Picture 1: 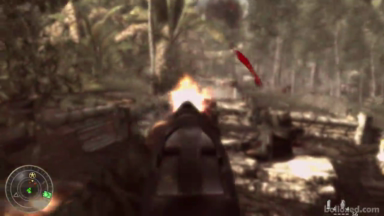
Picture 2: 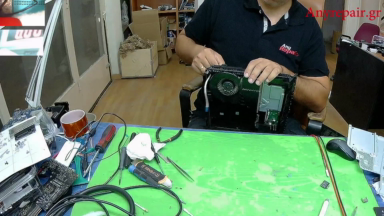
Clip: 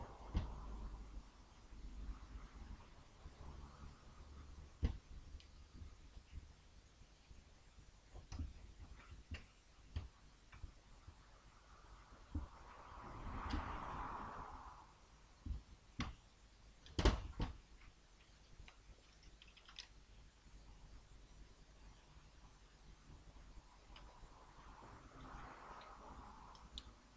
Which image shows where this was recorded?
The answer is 2